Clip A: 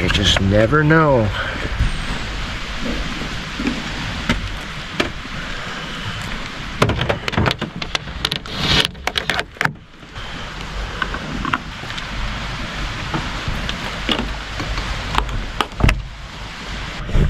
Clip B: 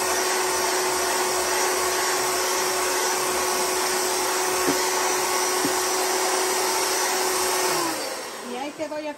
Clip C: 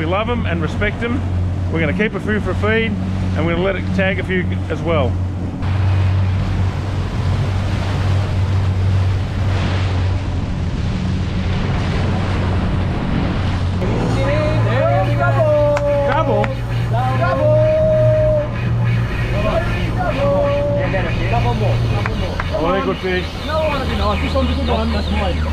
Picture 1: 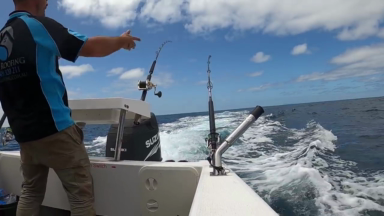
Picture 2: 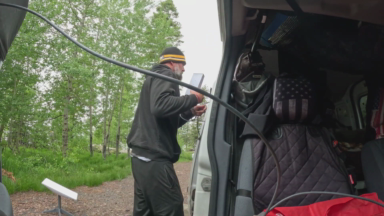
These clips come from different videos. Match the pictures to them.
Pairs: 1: C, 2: A